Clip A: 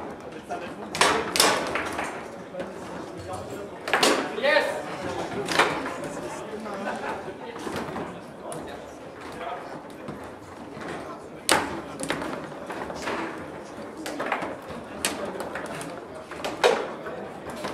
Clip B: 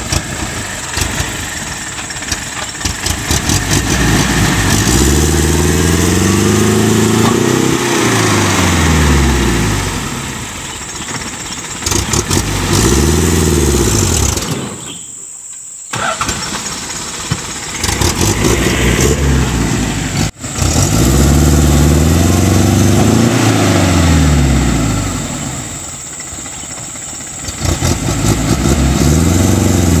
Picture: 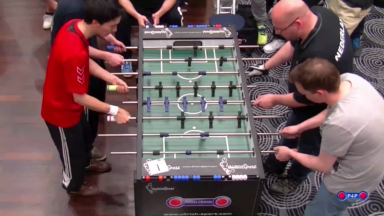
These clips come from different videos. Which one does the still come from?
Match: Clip A